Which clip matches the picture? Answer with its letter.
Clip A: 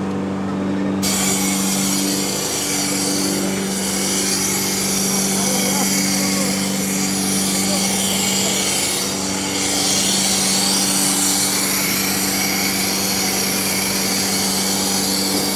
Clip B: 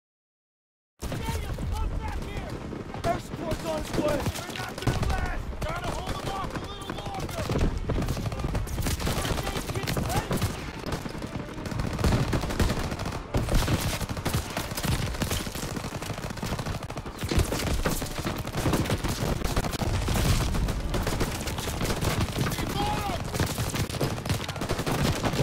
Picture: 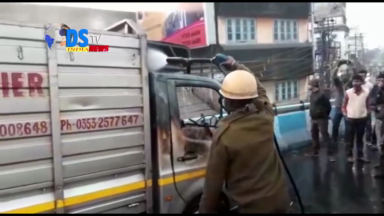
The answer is A